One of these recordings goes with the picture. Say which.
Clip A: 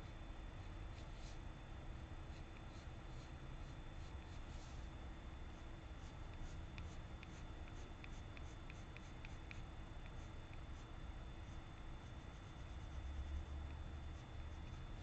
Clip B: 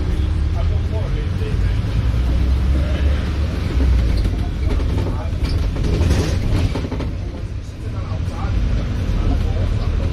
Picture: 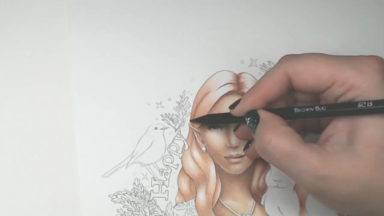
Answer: A